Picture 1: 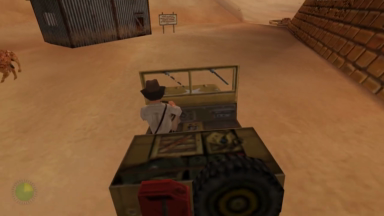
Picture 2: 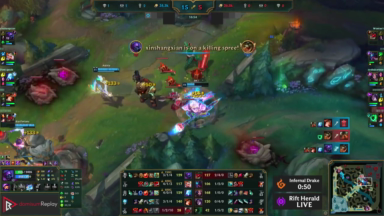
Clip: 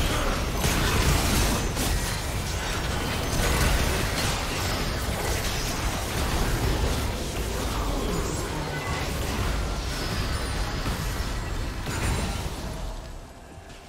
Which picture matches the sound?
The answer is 2